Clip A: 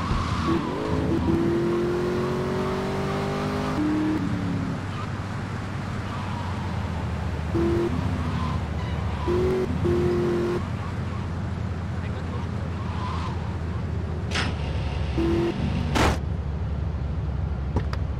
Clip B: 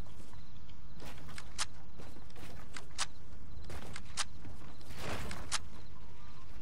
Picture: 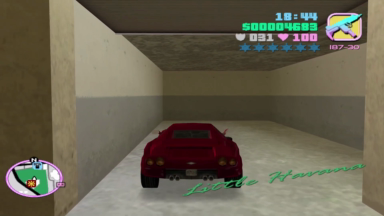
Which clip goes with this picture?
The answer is A